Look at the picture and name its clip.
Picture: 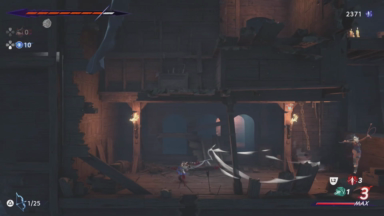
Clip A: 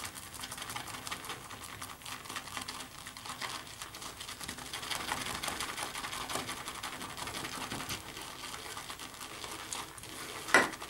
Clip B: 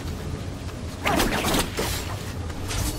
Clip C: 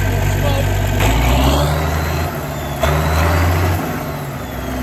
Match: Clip B